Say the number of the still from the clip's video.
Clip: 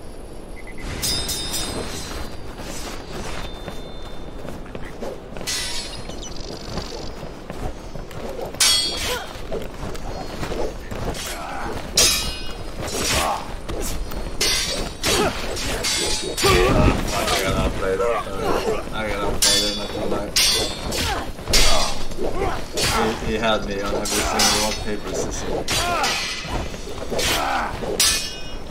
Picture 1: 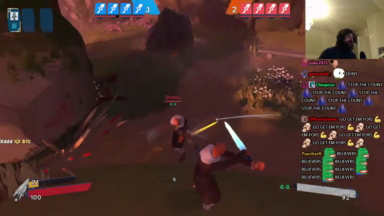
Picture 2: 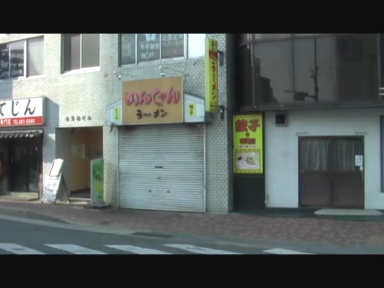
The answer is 1